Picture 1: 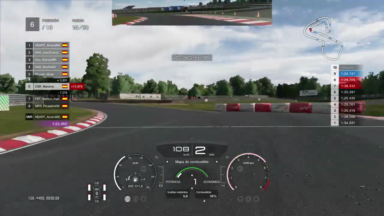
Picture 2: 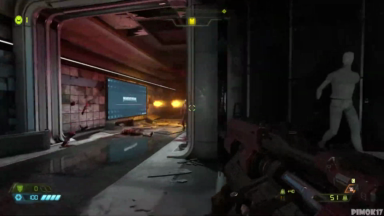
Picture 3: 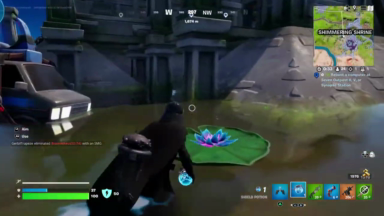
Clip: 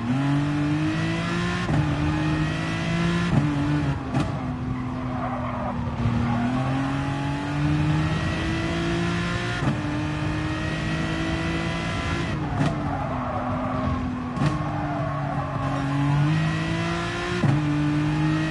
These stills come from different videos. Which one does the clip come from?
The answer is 1